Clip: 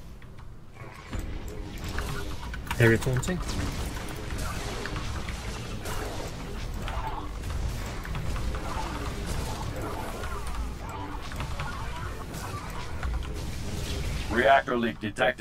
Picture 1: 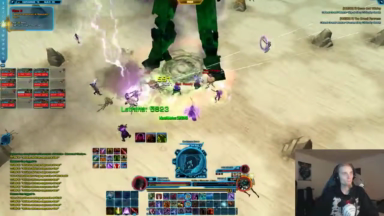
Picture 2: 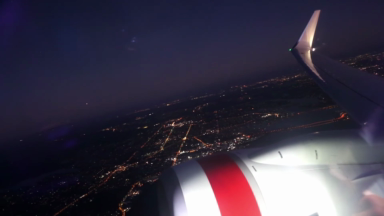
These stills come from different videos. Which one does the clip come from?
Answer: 1